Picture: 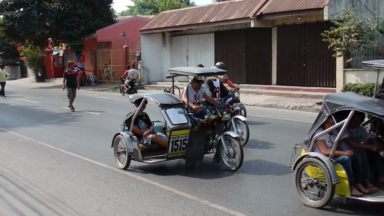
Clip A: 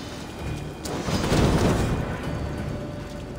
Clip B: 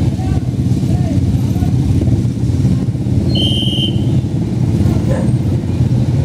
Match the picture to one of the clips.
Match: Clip B